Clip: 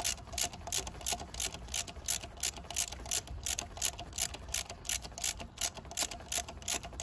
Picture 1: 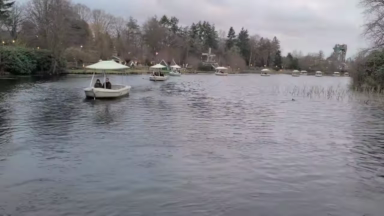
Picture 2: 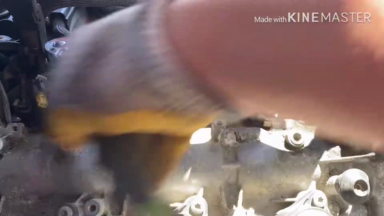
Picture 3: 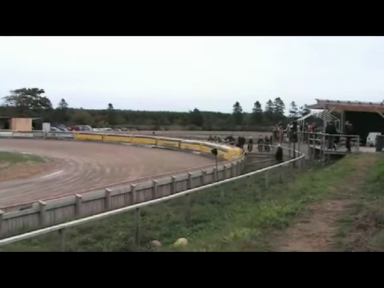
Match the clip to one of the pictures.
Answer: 2